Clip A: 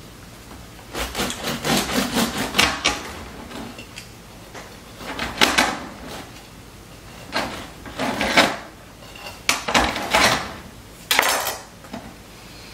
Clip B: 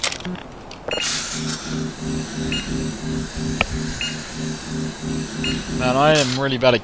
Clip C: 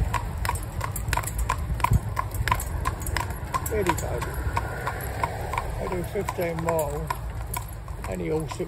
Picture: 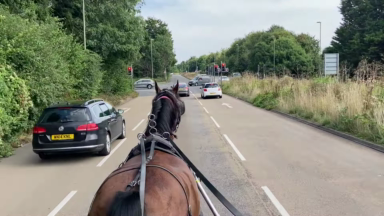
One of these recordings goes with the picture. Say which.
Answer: C